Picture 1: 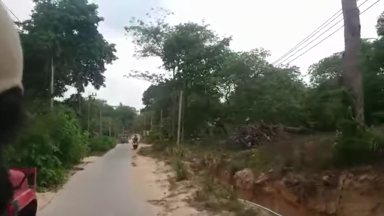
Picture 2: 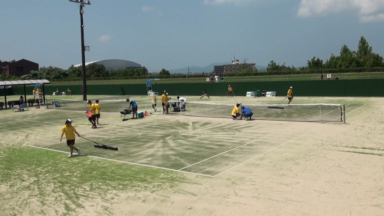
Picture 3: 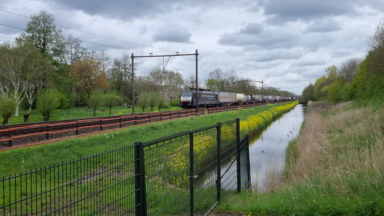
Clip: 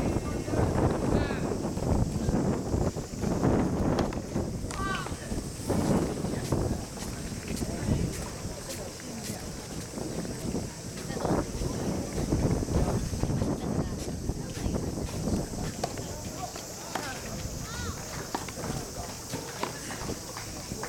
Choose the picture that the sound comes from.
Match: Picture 2